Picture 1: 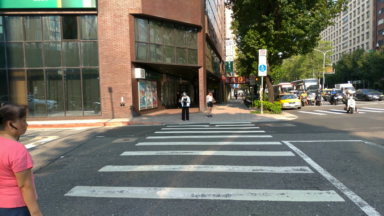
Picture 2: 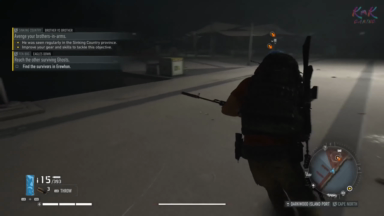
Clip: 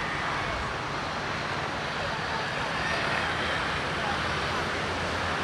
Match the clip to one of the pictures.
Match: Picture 1